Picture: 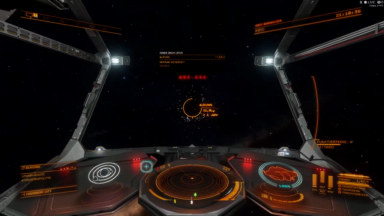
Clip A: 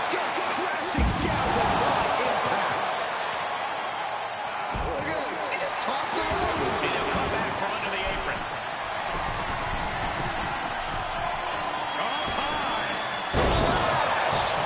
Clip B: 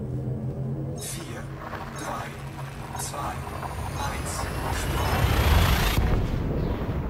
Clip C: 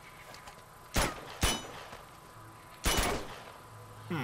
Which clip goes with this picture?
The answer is B